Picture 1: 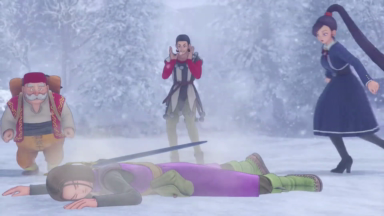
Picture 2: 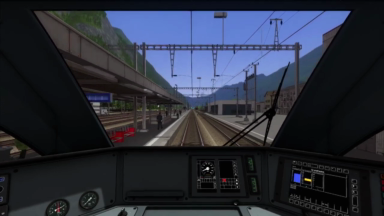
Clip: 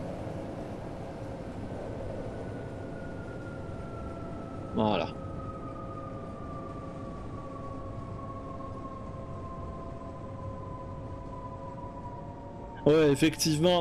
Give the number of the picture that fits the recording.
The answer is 2